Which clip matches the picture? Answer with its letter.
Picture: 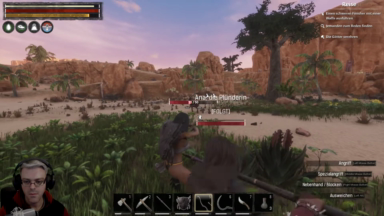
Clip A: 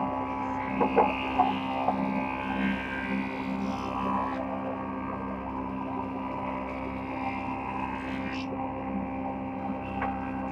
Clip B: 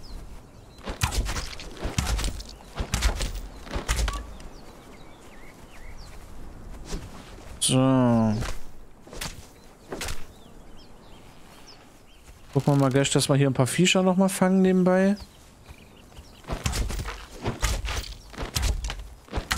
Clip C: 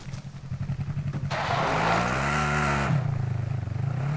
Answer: B